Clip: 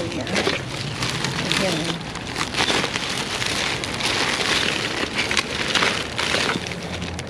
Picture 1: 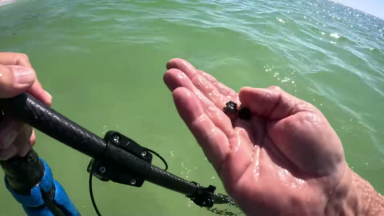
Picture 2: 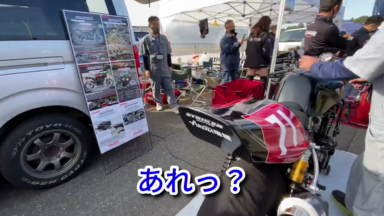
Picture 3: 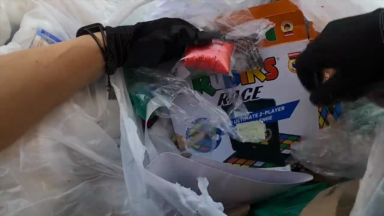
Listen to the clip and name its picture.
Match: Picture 3